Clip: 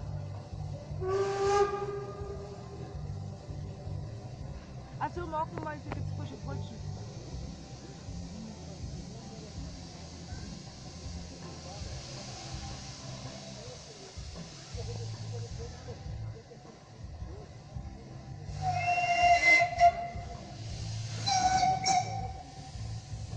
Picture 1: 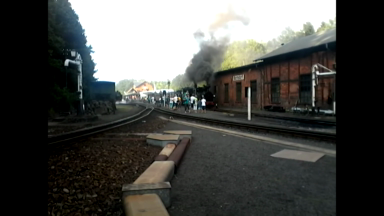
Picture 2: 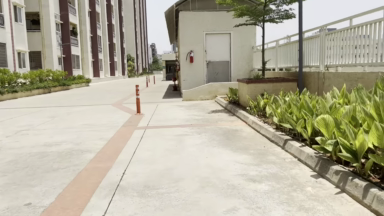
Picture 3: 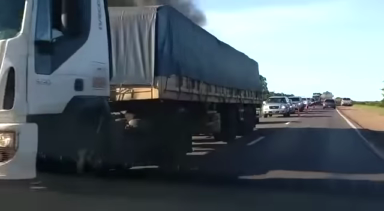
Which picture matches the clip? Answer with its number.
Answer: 1